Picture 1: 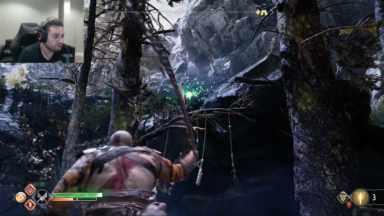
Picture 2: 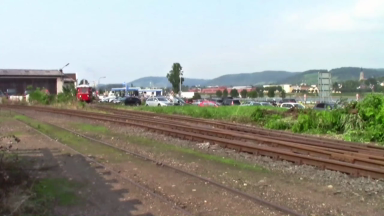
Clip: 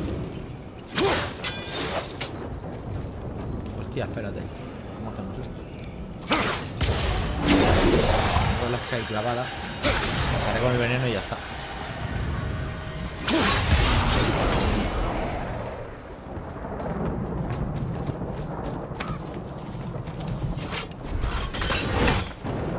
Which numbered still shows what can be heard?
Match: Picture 1